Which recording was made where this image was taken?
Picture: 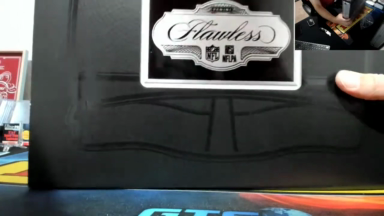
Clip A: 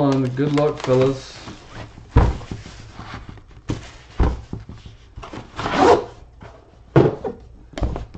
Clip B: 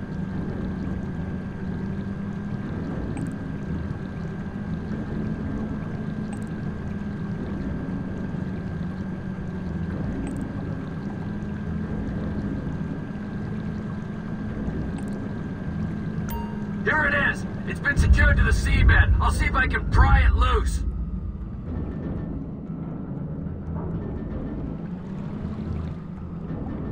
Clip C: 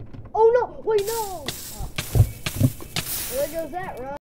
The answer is A